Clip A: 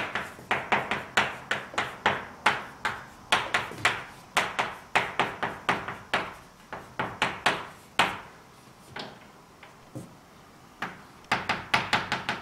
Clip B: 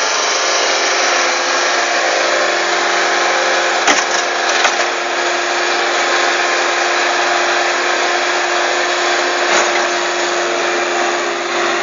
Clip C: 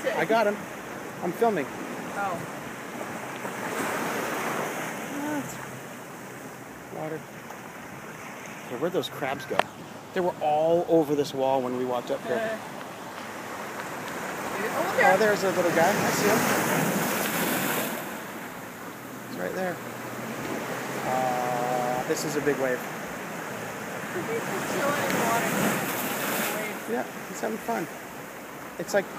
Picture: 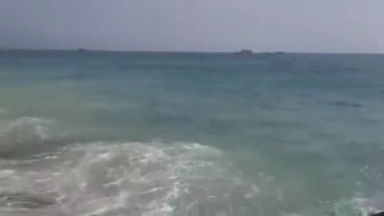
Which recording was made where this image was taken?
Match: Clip C